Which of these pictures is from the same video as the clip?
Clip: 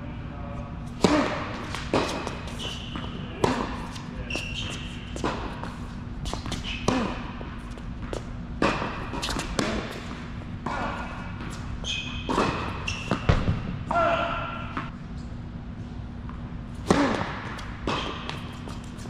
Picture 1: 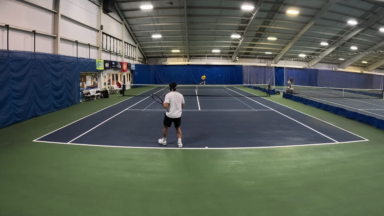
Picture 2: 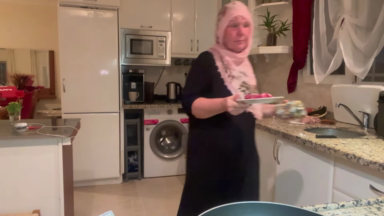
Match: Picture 1